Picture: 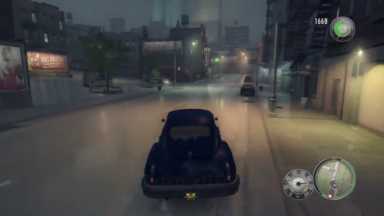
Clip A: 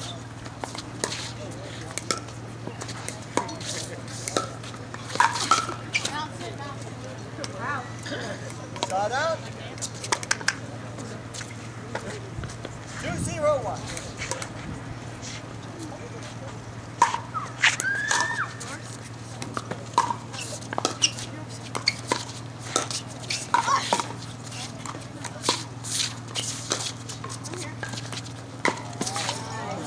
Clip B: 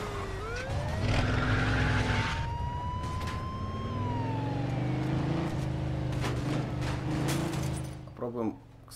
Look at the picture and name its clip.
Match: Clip B